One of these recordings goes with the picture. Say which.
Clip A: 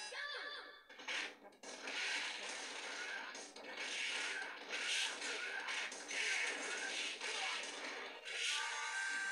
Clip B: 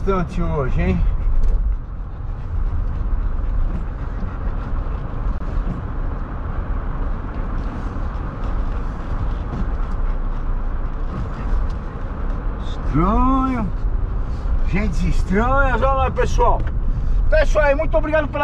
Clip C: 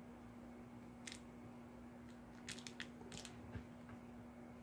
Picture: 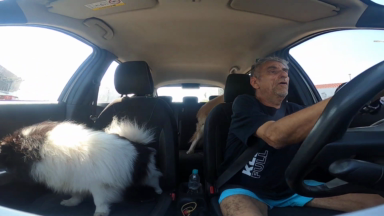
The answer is B